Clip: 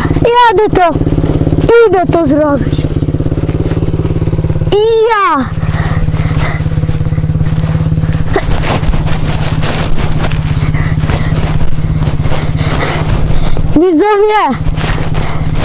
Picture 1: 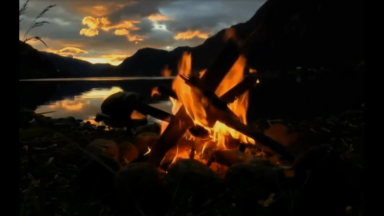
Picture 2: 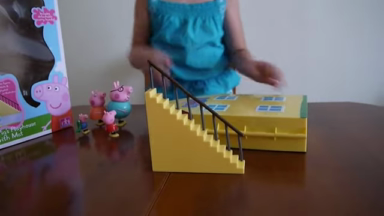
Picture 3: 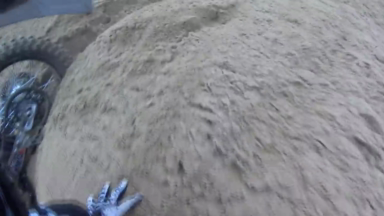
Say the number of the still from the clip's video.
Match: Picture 3